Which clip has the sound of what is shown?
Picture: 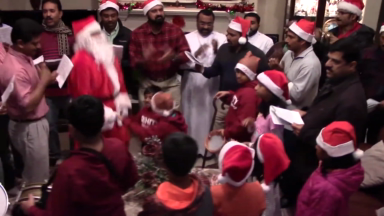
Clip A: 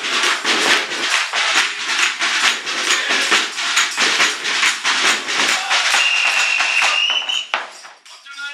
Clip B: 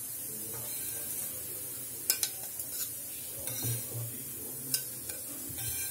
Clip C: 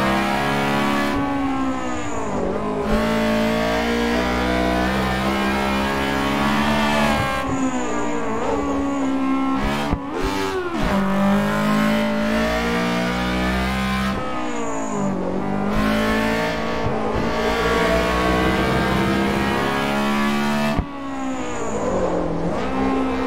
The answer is A